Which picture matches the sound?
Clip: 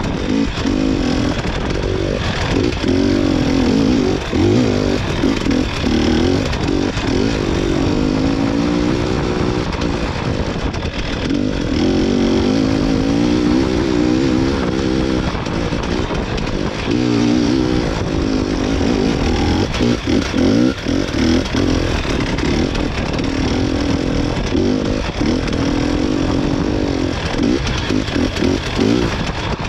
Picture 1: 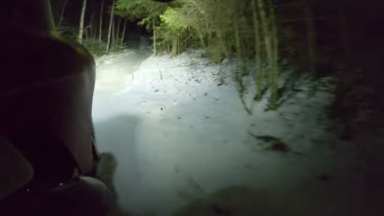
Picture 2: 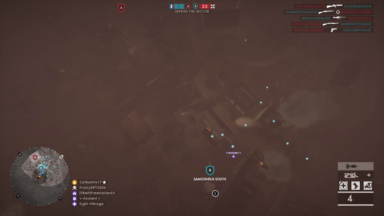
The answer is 1